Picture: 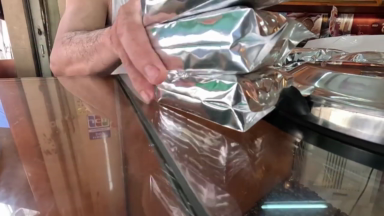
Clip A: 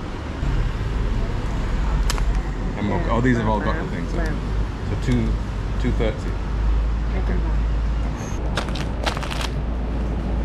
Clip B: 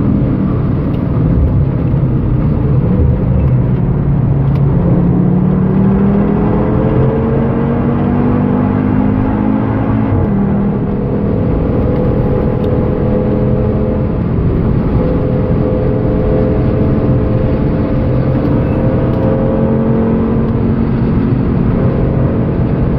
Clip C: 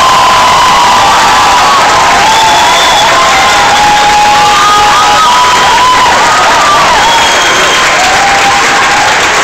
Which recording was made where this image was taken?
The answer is A